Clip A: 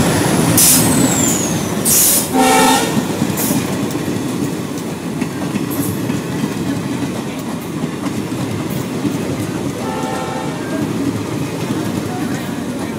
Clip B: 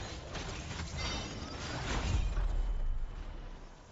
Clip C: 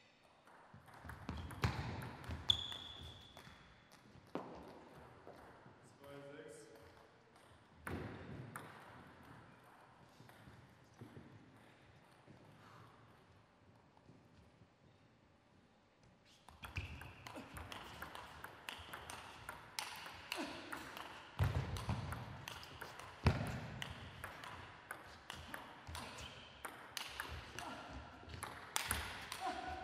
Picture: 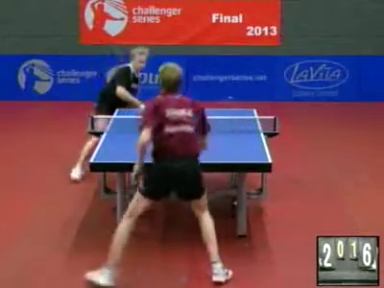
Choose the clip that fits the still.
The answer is C